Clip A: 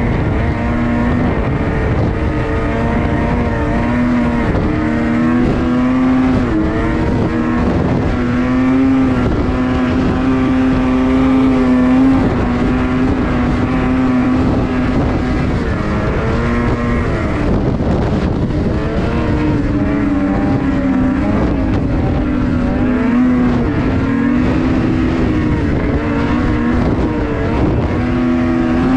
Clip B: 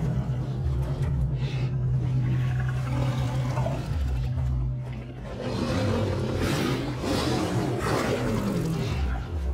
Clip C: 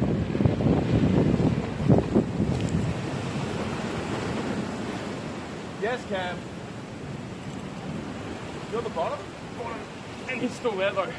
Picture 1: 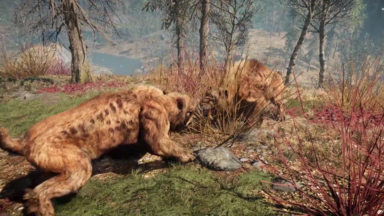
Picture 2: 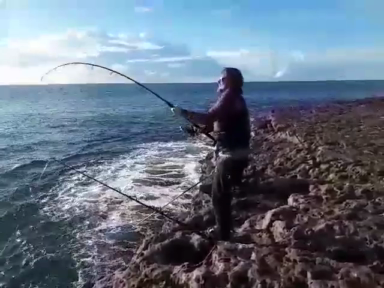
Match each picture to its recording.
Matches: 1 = B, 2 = C